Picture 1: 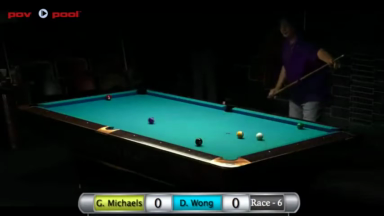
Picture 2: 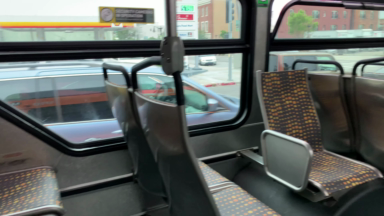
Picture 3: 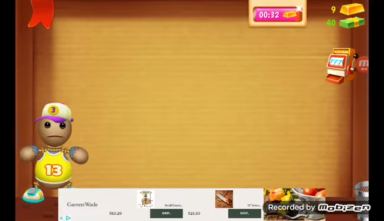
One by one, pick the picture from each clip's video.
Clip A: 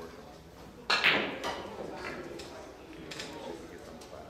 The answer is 1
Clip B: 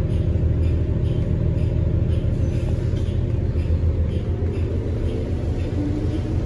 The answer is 2